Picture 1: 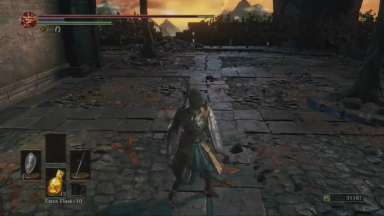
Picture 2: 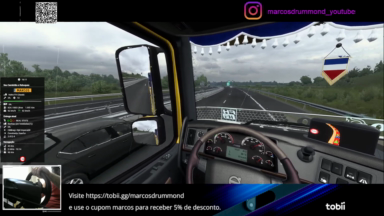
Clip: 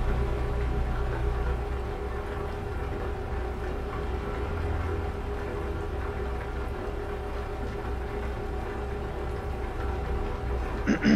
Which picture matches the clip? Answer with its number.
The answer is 2